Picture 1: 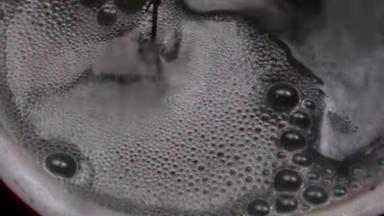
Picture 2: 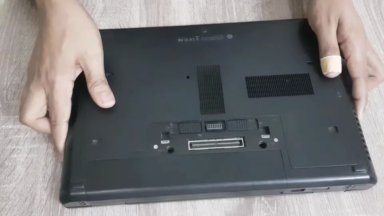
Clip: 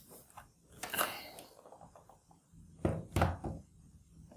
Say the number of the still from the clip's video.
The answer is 2